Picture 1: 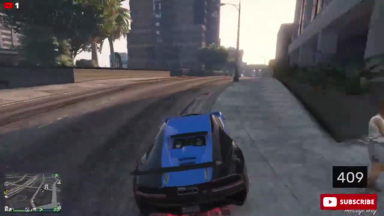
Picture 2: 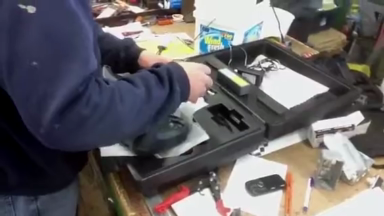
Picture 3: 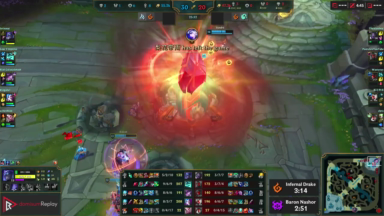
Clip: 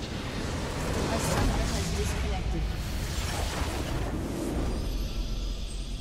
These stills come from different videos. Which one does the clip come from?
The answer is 3